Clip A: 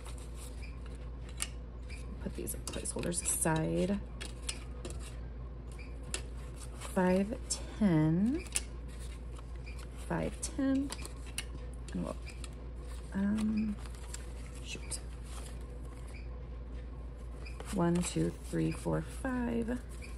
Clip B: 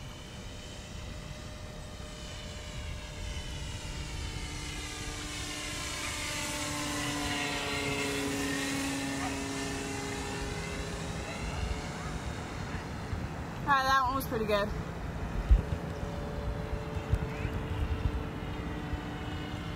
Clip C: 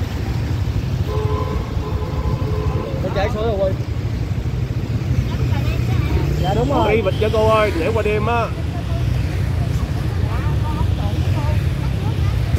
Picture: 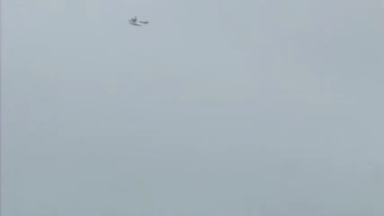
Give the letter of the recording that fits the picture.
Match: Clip B